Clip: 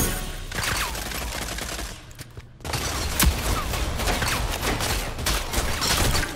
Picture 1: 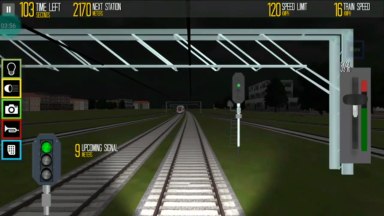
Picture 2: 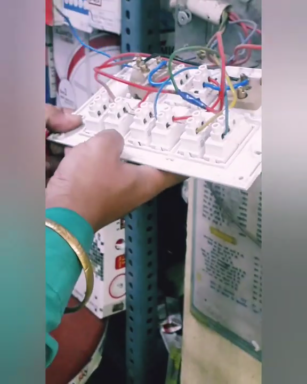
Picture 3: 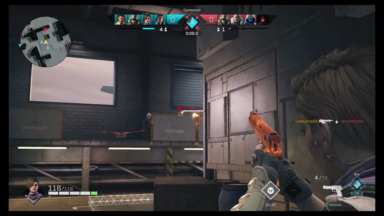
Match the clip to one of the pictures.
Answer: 3